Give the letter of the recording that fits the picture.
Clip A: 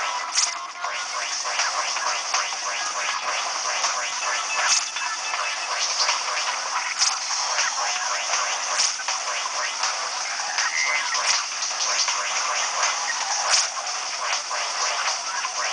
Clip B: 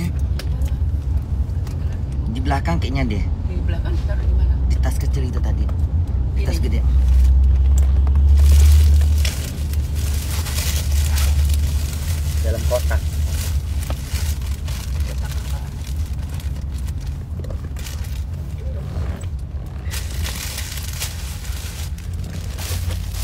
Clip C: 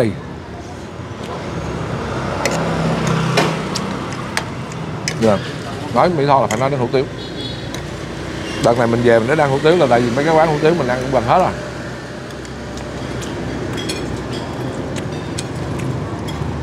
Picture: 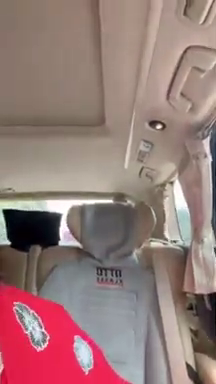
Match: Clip B